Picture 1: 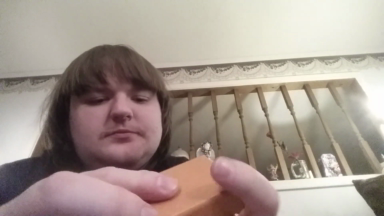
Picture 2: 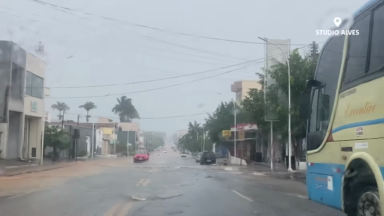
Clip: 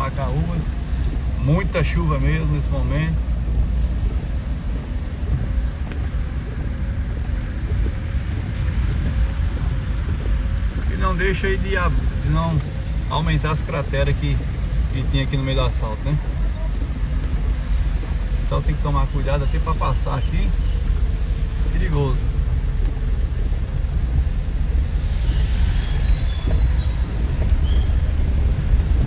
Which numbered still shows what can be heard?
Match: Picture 2